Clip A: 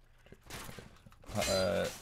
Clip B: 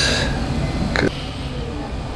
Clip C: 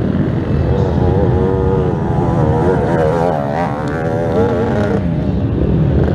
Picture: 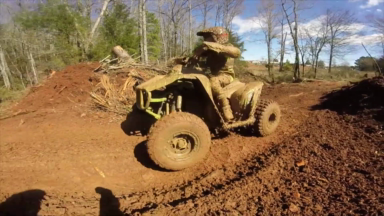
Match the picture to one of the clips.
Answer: C